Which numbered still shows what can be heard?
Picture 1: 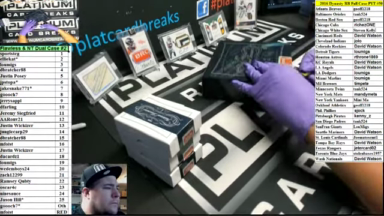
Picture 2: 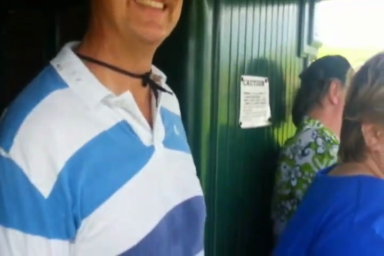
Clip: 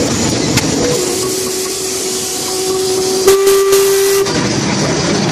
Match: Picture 2